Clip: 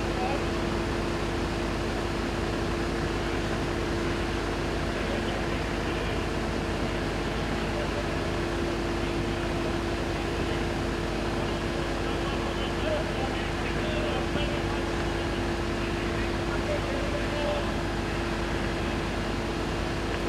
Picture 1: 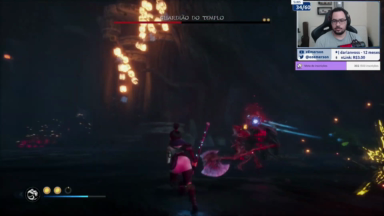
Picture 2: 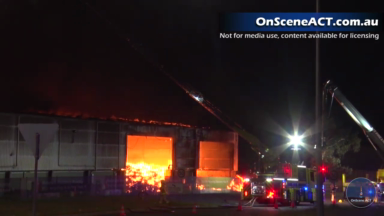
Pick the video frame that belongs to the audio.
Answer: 2